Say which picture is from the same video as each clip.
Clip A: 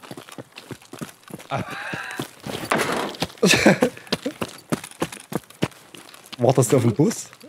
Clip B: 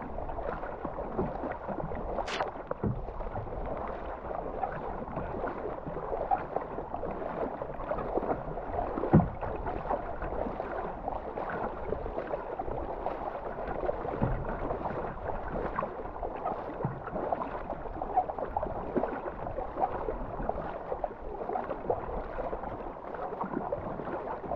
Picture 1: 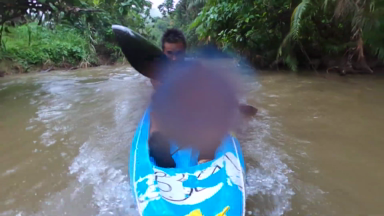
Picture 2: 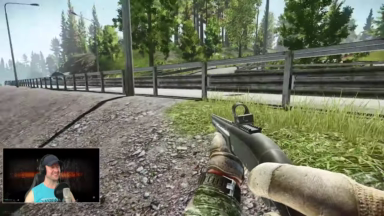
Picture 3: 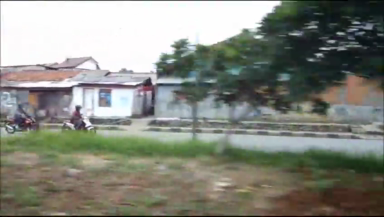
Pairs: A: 2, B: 1